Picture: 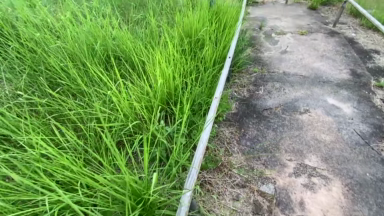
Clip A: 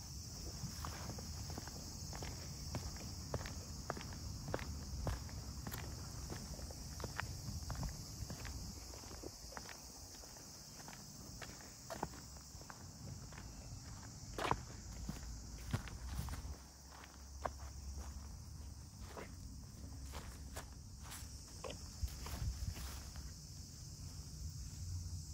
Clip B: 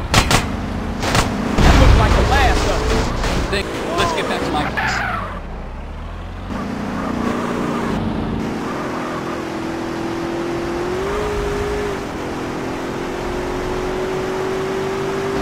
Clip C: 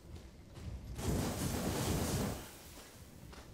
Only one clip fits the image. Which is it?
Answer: A